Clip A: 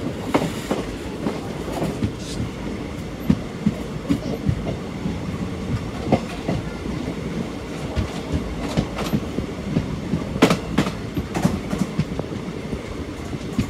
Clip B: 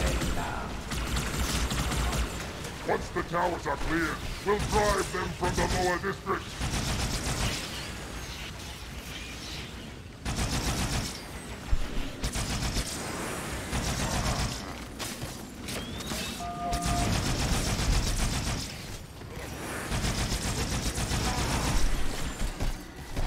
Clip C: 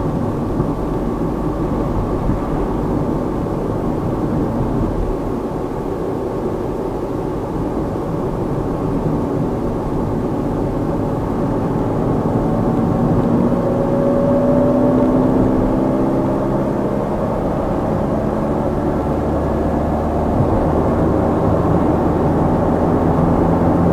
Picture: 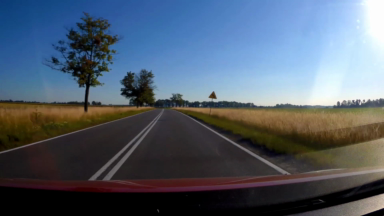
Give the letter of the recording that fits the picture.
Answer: C